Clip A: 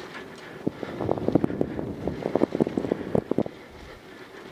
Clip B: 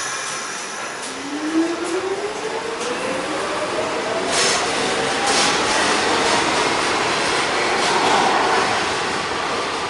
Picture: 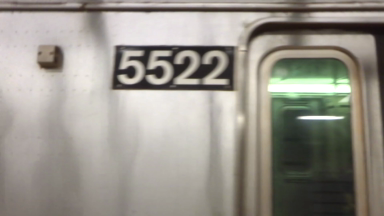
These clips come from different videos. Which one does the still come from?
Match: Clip B